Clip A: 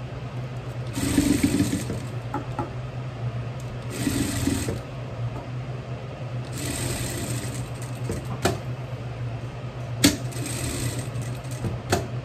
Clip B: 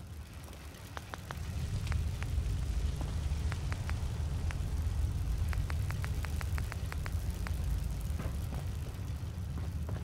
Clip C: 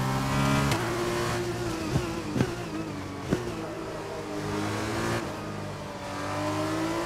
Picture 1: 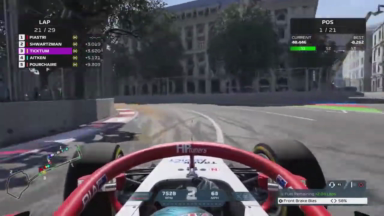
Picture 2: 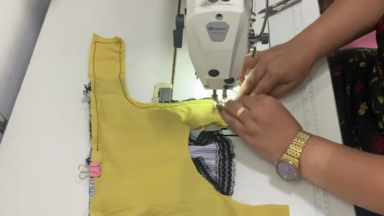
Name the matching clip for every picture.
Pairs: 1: C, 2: A